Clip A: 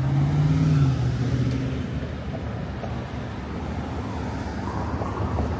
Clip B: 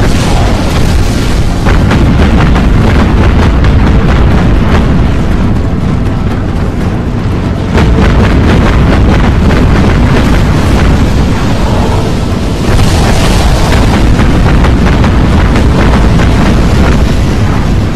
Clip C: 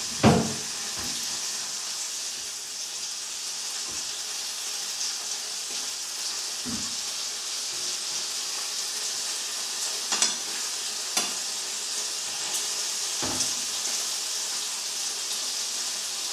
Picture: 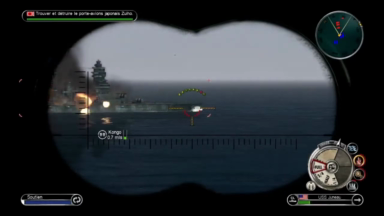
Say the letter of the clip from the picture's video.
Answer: B